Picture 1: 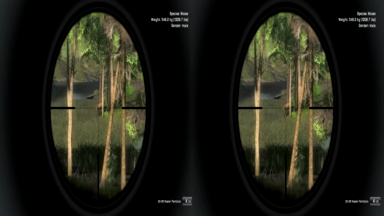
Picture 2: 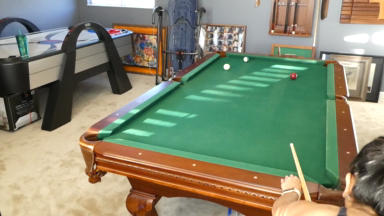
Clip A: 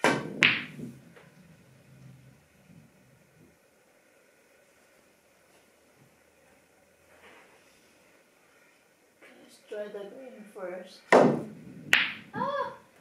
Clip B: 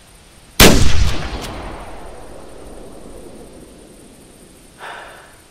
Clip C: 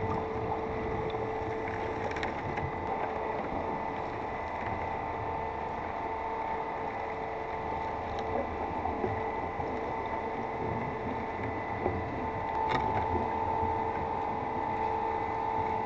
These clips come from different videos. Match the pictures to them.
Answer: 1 B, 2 A